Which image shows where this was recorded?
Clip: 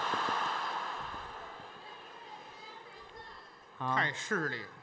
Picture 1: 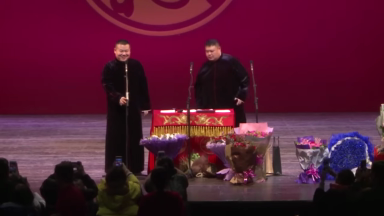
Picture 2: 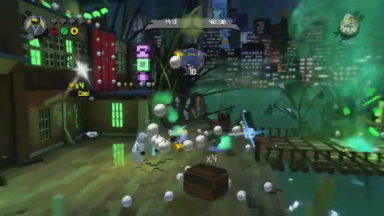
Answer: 1